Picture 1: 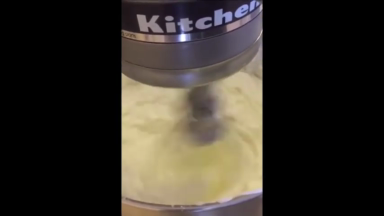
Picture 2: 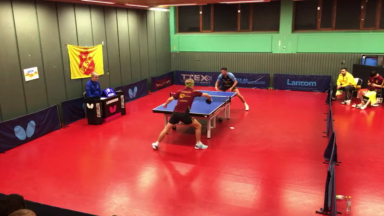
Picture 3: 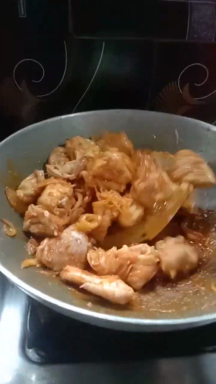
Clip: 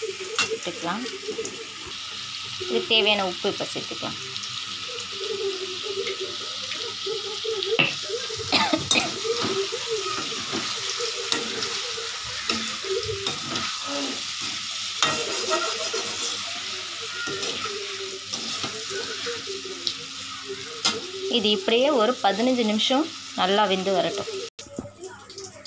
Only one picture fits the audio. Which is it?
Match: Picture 3